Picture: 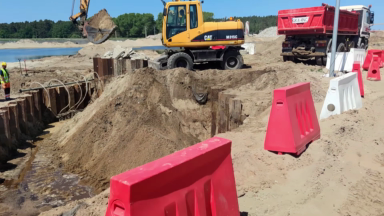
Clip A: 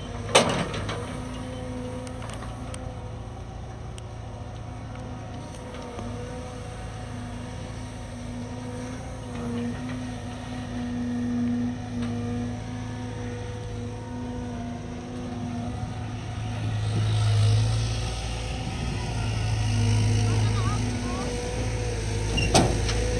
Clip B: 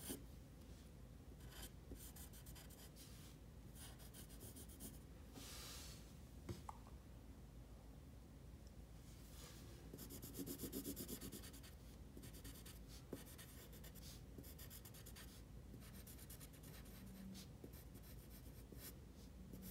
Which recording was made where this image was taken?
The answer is A